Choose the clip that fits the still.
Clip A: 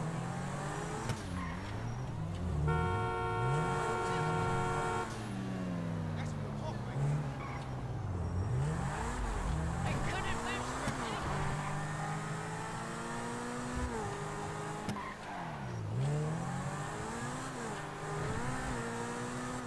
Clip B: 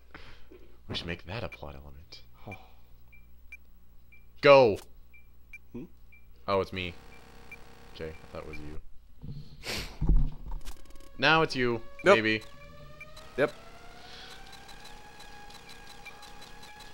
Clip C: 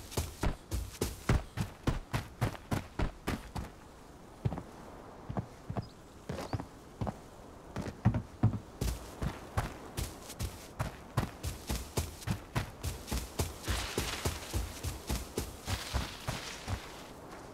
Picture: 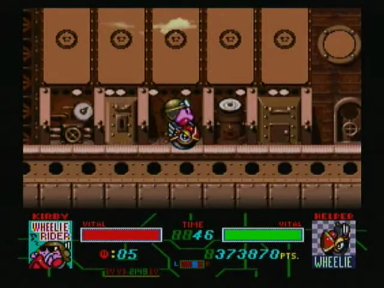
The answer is B